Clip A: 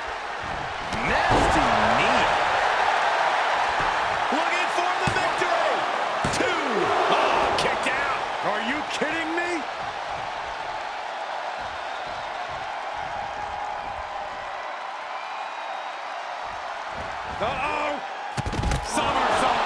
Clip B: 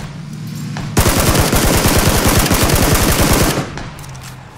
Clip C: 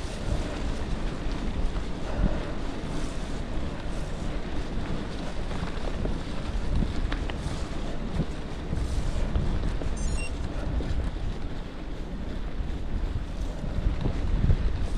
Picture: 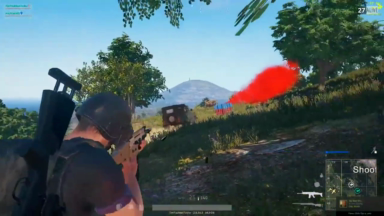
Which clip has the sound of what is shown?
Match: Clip B